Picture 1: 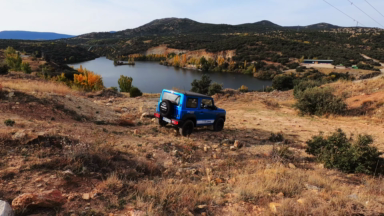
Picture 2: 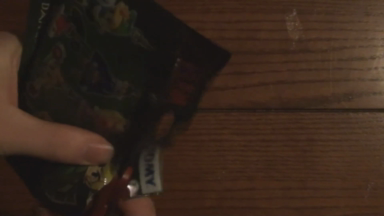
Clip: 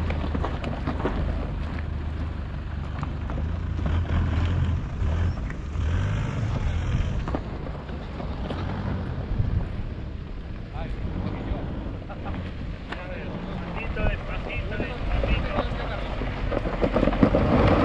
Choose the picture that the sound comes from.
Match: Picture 1